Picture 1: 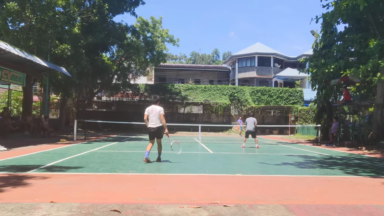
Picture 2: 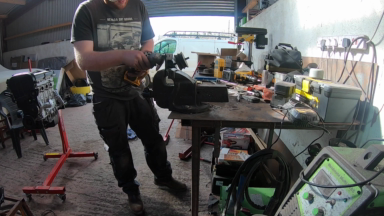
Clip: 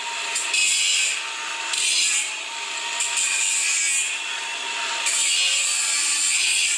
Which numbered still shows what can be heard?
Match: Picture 2